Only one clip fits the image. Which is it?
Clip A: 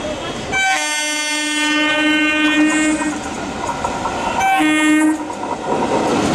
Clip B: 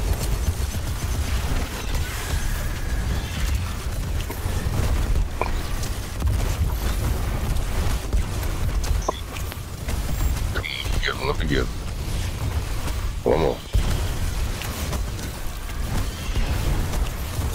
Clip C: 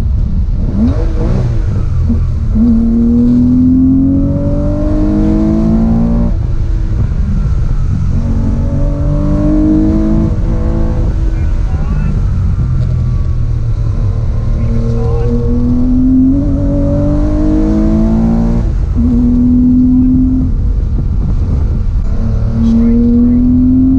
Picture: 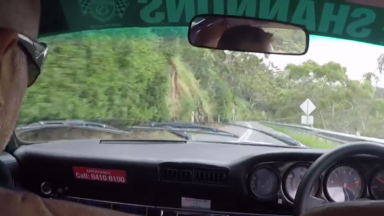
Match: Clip C